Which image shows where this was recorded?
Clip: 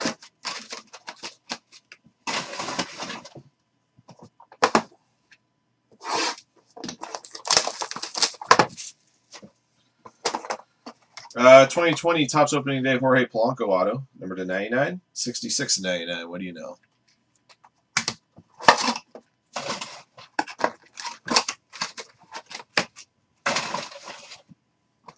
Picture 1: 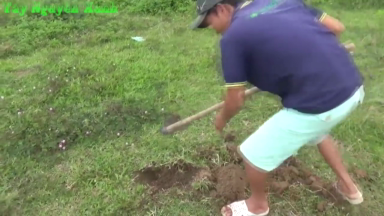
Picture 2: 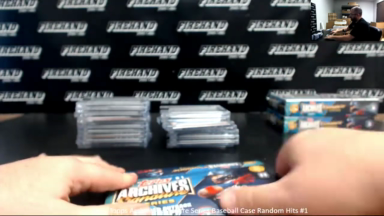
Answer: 2